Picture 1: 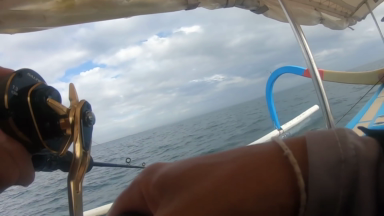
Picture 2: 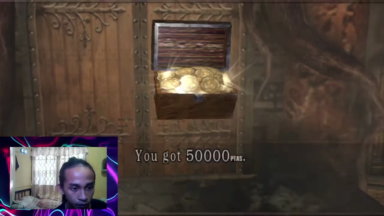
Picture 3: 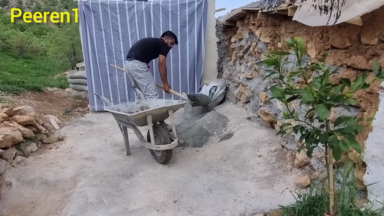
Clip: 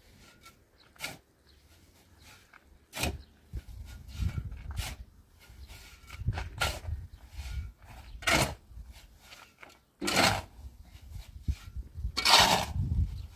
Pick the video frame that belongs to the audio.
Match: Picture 3